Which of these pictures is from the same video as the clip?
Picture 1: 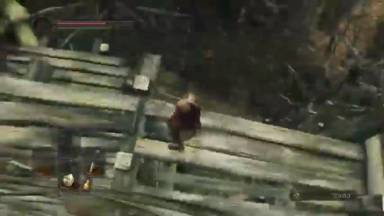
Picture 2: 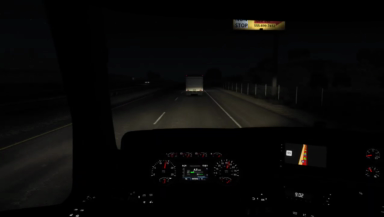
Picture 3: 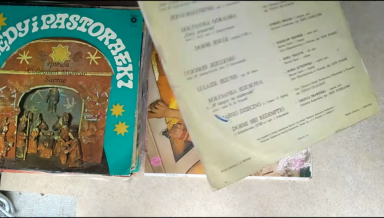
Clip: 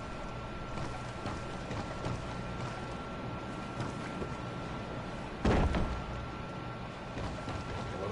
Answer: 1